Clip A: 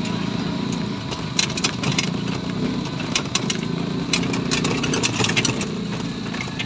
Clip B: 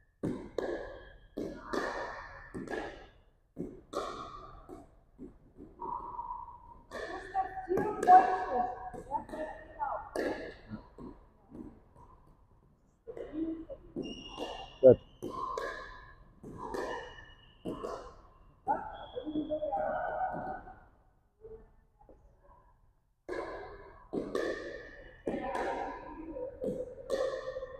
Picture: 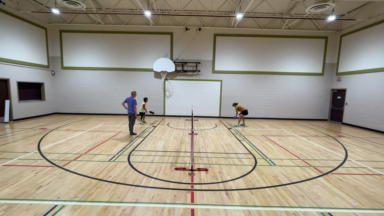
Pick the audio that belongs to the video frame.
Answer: B